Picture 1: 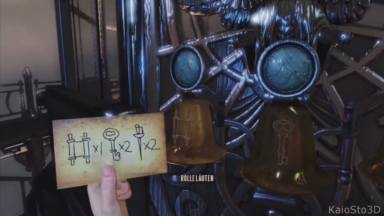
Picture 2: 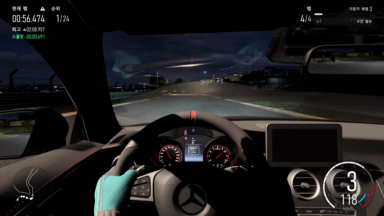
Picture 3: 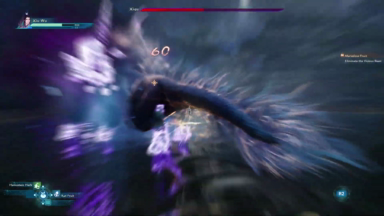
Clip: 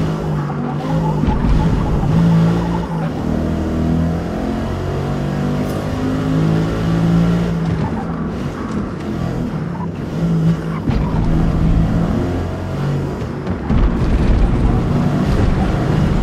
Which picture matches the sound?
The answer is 2